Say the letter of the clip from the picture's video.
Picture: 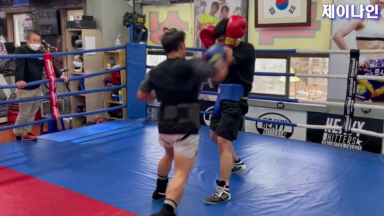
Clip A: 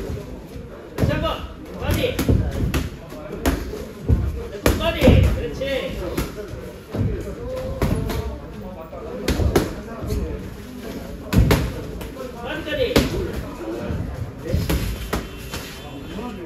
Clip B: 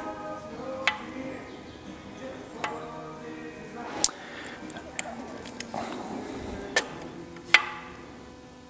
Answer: A